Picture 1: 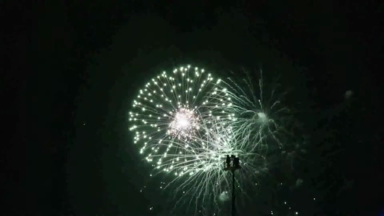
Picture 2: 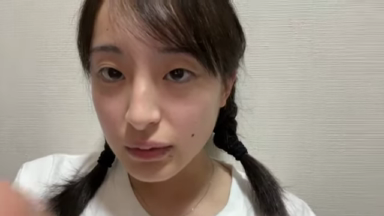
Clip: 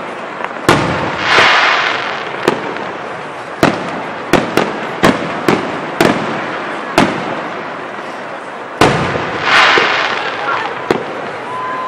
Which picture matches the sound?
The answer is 1